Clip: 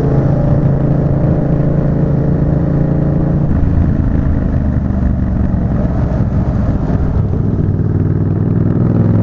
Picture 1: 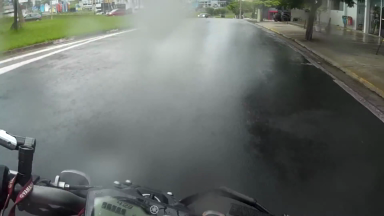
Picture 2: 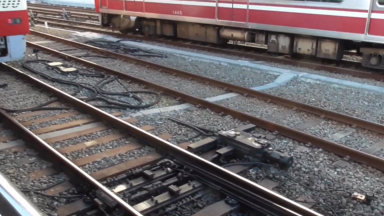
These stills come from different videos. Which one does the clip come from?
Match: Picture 1